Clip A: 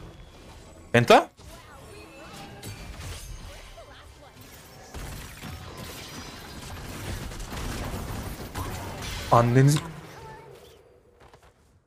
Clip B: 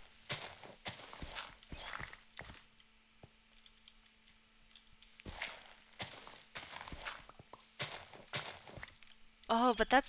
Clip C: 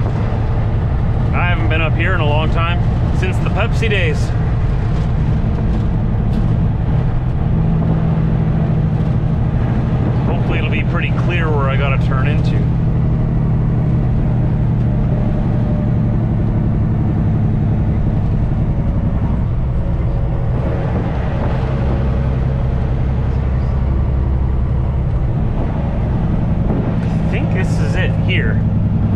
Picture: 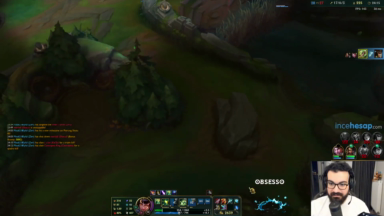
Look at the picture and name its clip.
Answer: A